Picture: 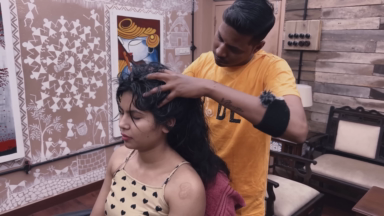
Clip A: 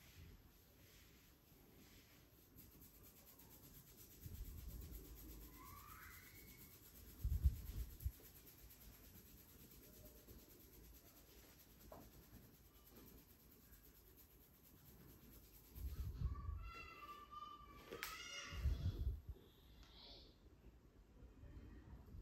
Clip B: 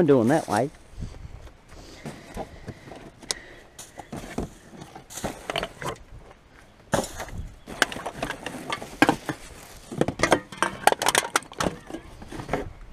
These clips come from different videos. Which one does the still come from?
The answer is A